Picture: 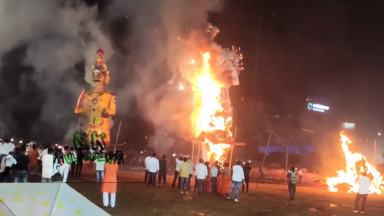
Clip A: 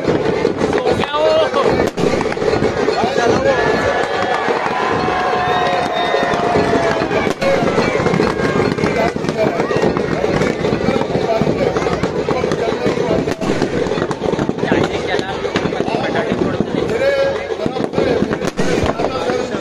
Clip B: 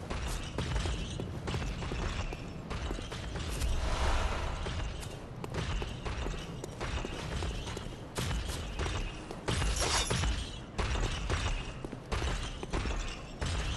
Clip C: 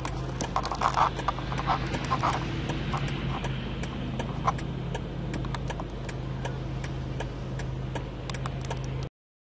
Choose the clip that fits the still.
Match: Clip A